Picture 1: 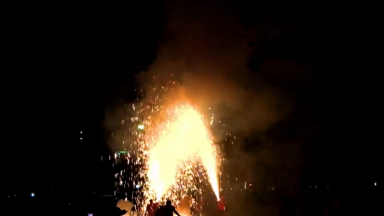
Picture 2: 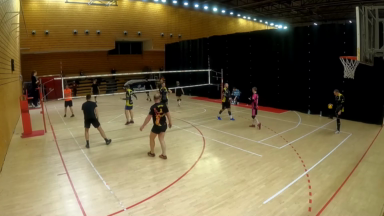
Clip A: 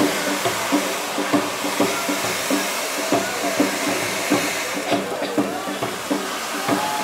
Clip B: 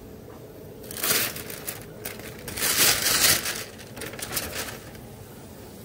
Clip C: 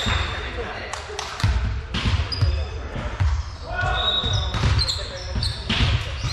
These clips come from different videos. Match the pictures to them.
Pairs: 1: A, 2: C